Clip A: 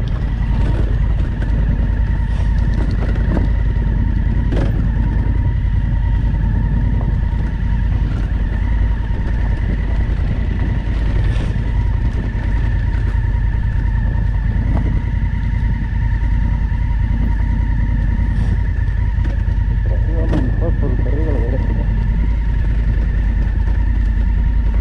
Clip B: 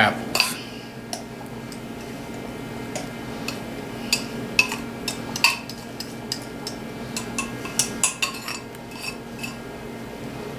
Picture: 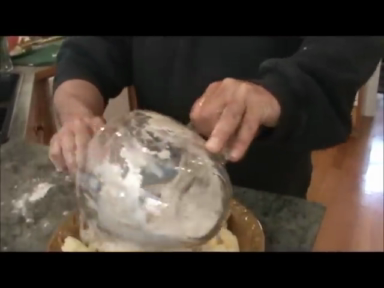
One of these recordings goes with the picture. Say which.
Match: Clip B